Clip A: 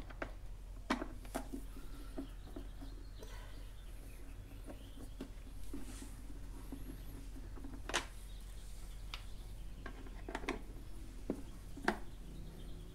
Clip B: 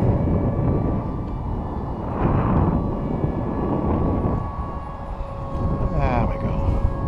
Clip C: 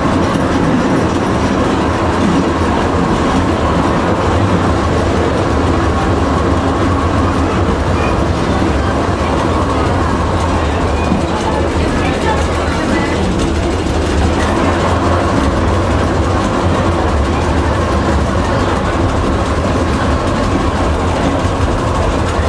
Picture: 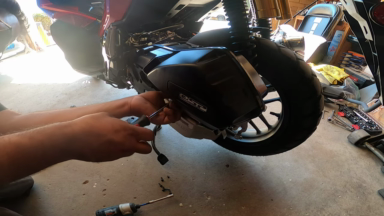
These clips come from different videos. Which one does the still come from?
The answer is A